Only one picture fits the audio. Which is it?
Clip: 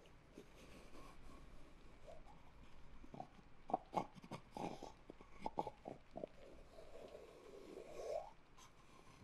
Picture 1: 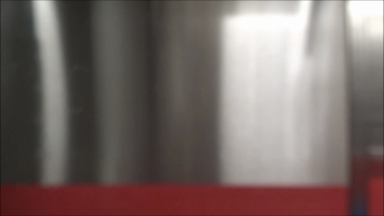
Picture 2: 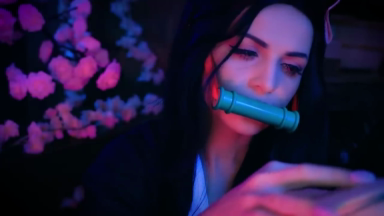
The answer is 2